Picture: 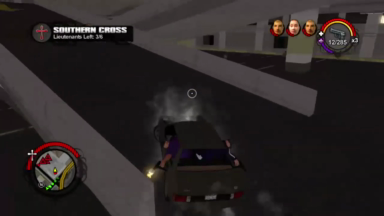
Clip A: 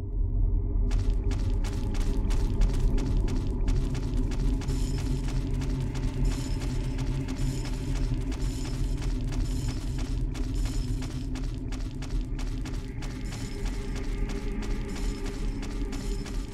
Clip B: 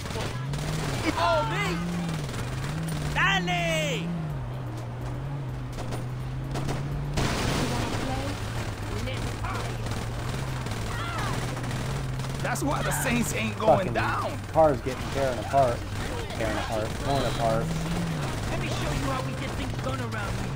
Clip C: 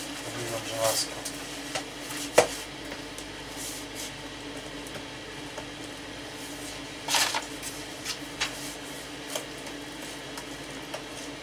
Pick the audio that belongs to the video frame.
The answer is B